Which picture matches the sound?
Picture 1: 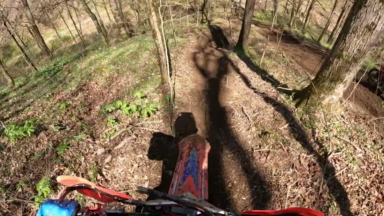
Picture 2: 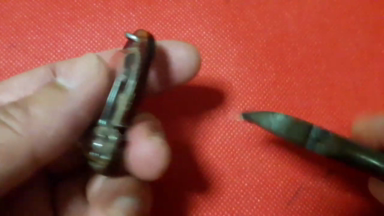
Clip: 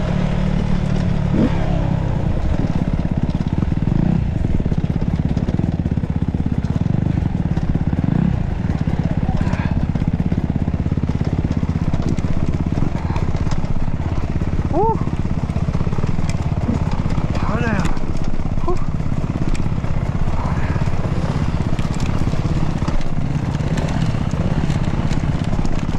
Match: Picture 1